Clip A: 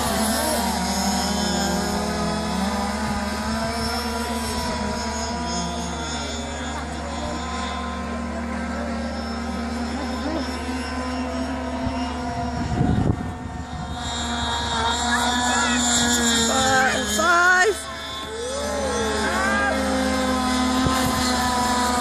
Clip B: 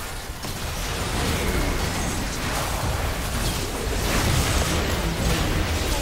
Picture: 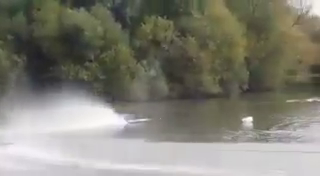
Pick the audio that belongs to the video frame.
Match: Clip A